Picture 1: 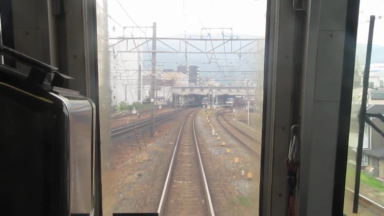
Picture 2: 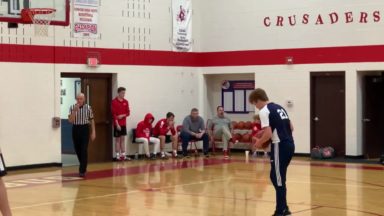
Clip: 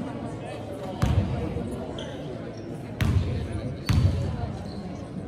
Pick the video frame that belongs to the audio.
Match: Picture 2